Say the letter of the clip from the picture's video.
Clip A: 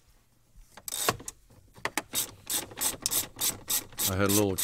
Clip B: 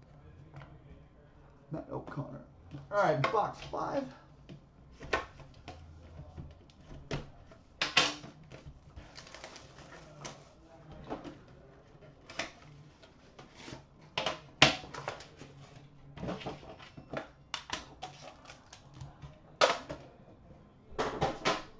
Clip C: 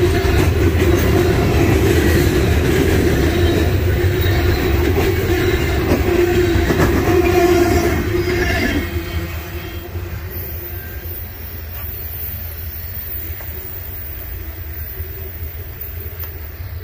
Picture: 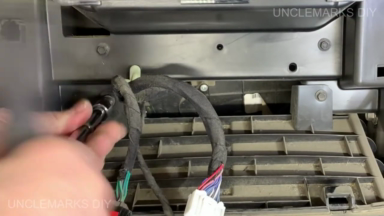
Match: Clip A